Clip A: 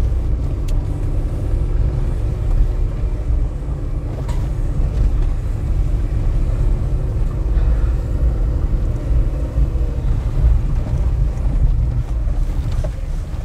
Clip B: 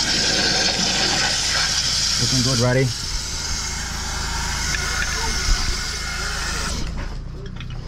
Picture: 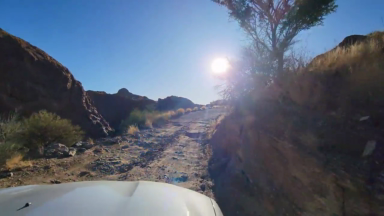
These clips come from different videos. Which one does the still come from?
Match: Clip A